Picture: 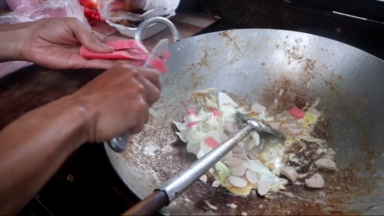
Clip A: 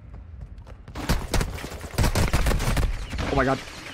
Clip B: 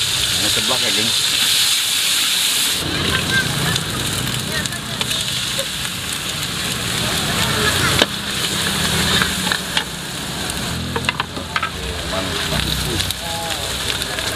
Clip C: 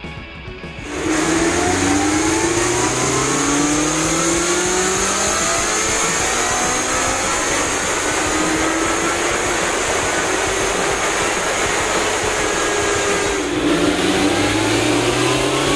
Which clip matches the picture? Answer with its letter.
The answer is B